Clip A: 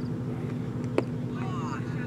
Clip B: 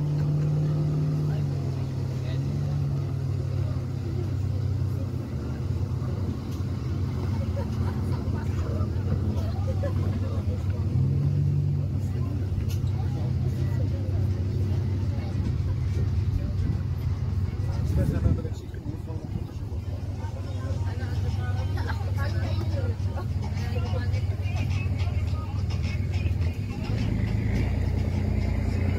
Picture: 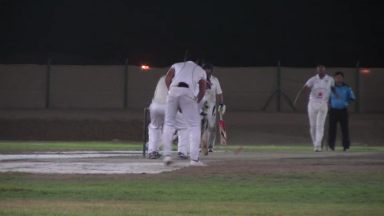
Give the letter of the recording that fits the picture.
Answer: A